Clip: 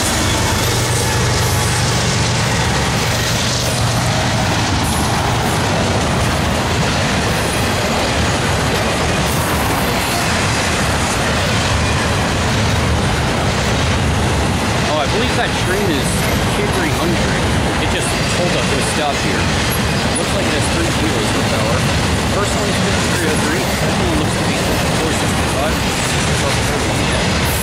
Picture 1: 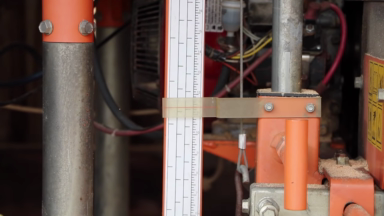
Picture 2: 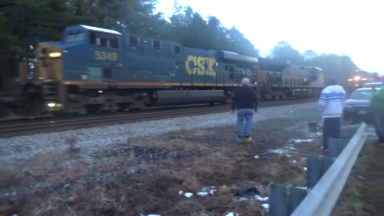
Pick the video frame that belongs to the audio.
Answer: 2